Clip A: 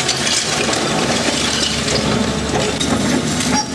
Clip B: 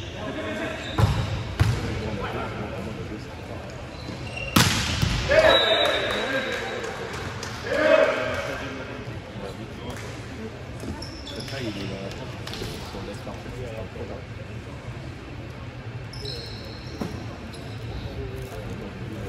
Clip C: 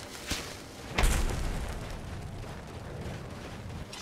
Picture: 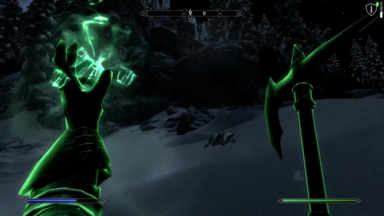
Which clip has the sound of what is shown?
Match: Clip C